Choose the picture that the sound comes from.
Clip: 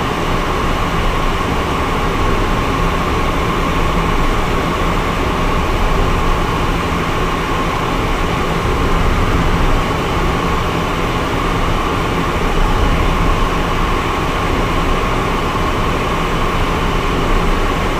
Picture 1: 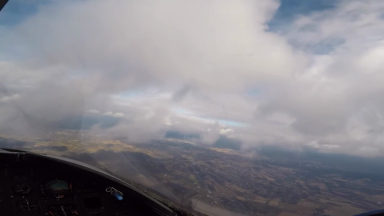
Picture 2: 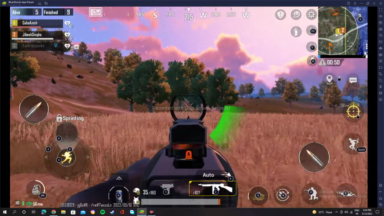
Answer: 1